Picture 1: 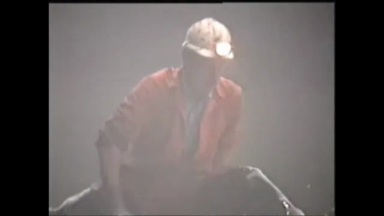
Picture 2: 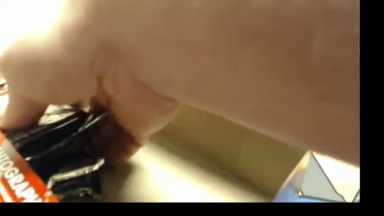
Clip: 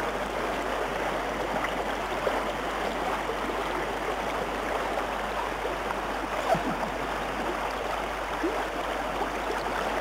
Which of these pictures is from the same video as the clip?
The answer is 1